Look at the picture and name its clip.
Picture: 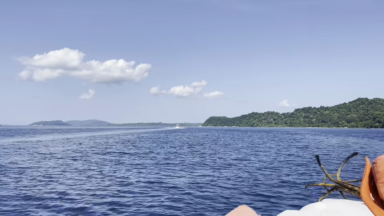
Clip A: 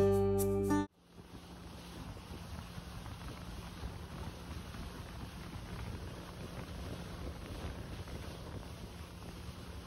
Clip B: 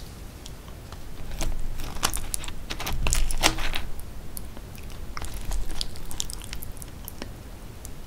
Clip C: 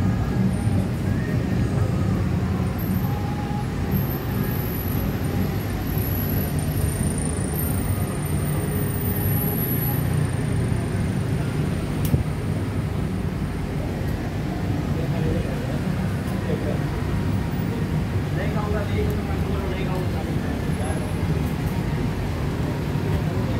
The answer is A